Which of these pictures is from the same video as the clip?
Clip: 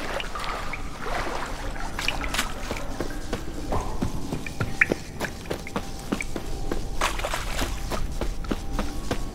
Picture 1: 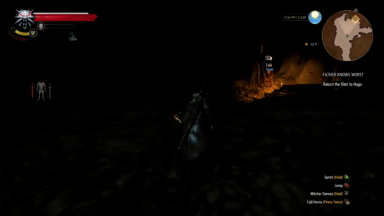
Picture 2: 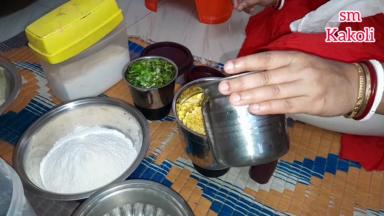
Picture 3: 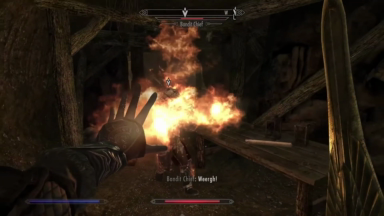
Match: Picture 1